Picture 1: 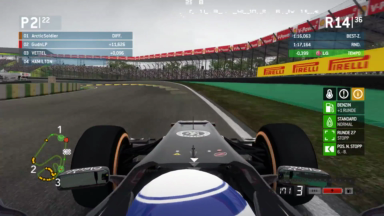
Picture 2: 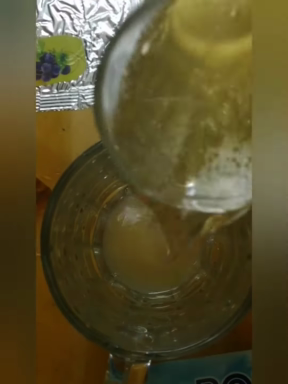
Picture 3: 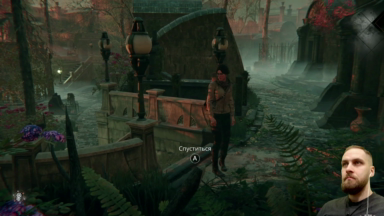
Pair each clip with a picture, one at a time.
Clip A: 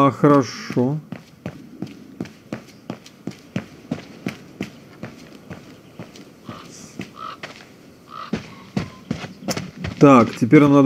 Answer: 3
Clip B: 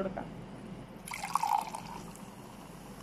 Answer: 2